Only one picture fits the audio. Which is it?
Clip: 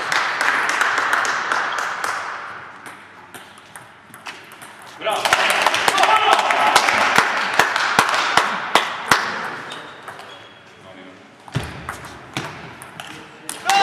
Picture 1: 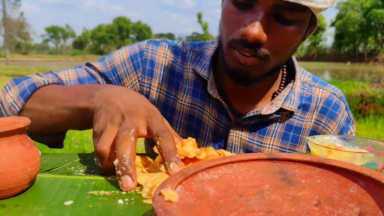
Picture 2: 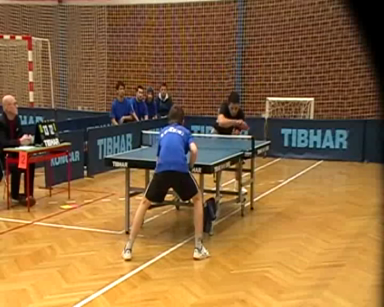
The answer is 2